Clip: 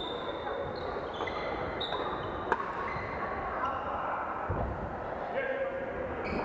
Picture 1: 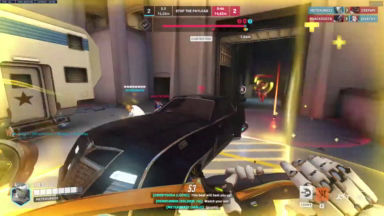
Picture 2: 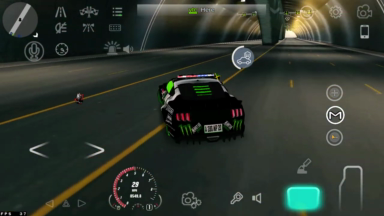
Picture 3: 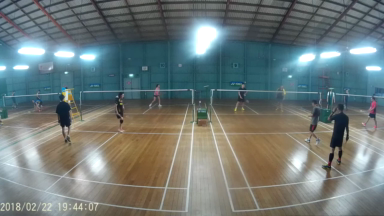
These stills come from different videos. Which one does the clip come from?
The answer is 3